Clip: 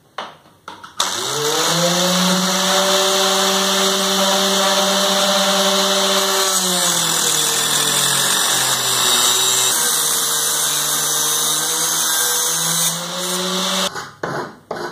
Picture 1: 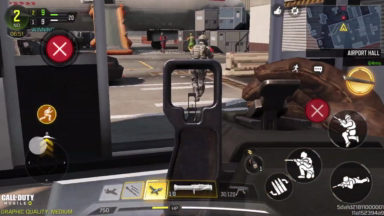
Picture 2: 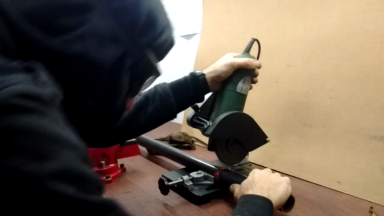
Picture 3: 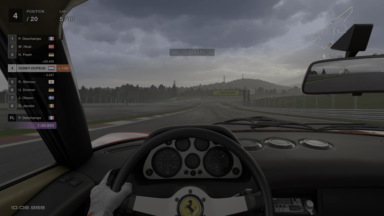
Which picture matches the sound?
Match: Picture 2